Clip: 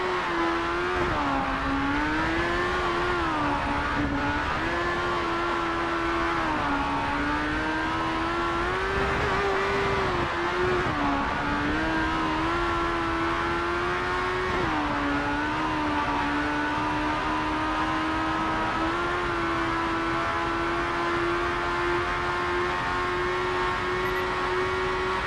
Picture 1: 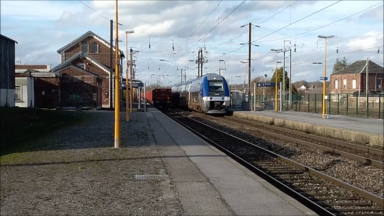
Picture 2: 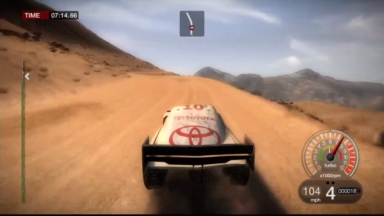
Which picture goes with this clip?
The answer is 2